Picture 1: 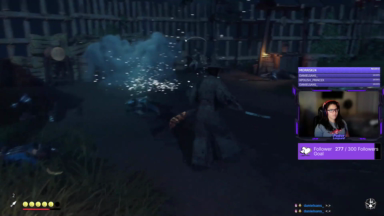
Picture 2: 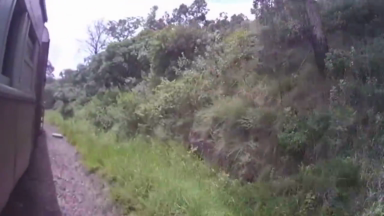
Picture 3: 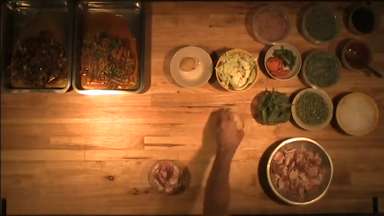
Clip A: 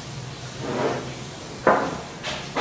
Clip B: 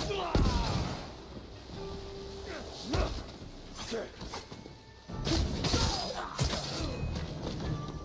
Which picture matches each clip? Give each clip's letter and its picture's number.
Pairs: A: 3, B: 1